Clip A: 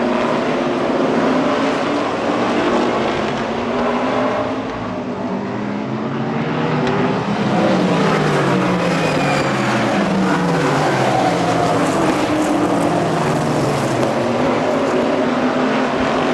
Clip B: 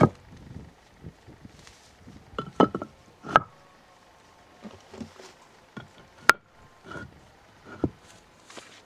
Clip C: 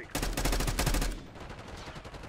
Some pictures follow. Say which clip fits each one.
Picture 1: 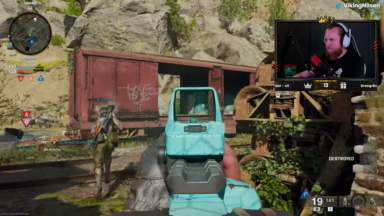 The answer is C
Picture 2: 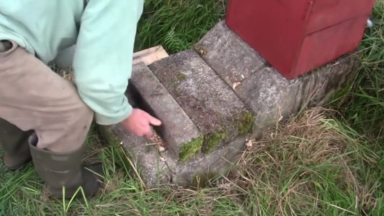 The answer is B